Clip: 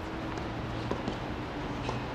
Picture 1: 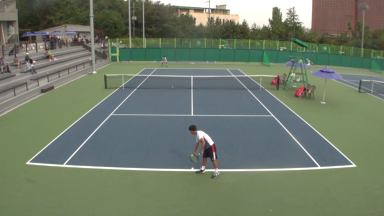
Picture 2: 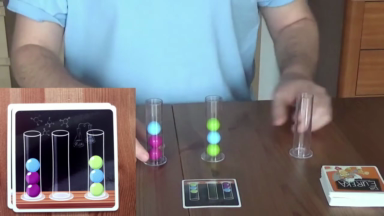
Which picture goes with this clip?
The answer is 1